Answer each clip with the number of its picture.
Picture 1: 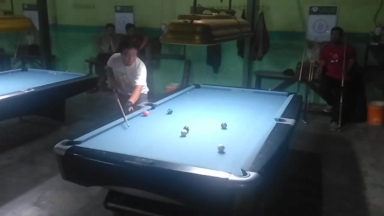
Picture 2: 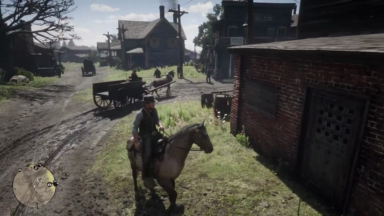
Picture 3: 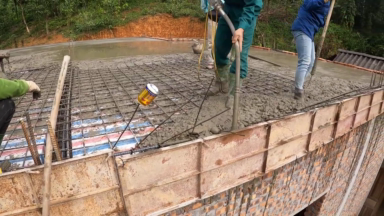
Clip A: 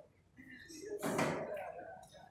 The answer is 1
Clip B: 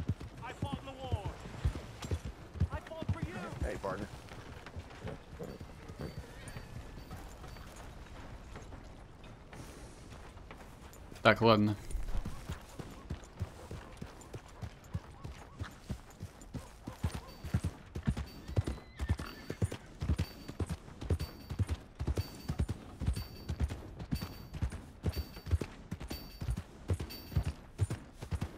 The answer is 2